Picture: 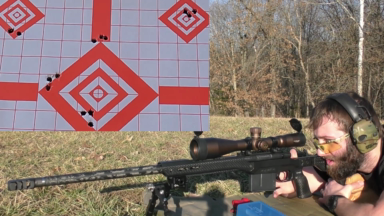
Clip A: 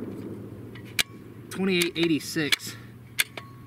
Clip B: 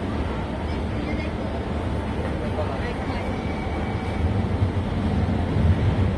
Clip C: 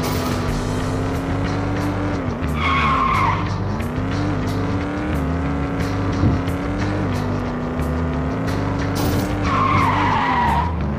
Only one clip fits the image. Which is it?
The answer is A